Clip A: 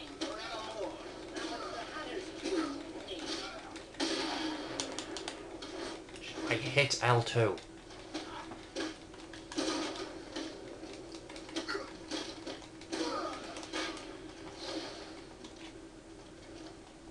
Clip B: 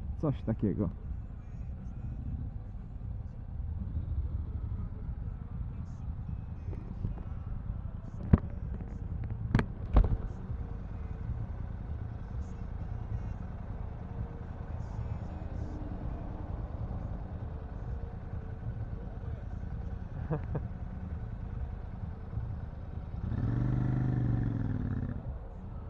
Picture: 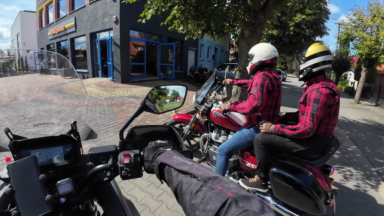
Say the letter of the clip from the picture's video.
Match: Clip B